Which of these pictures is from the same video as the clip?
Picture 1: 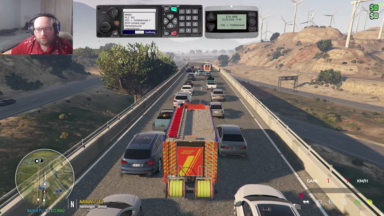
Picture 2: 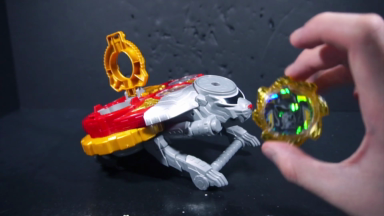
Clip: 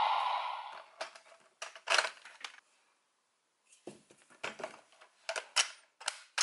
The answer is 2